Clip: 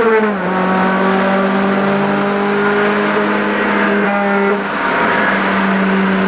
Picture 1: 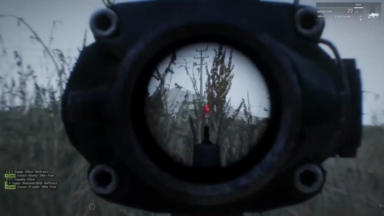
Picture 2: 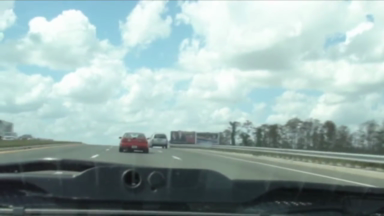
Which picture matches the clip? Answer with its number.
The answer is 2